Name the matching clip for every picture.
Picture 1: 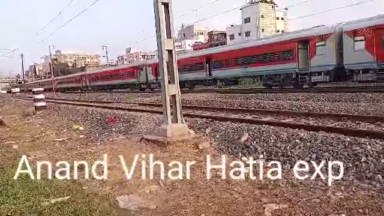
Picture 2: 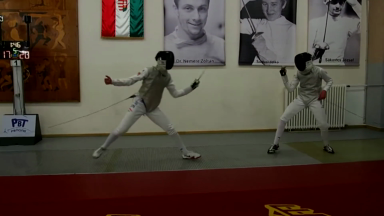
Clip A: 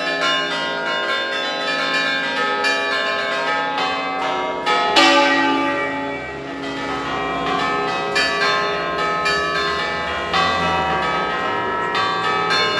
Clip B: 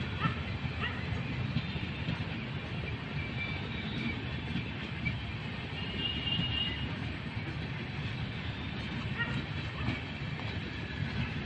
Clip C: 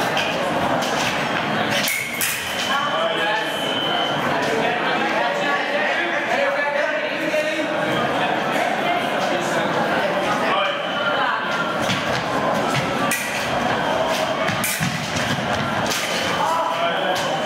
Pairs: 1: B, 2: C